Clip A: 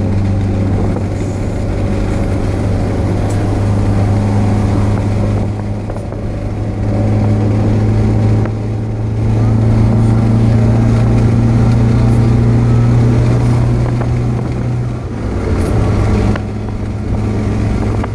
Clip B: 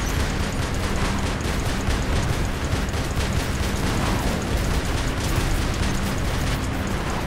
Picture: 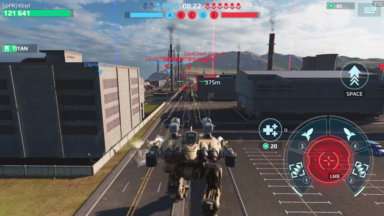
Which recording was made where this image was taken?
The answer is B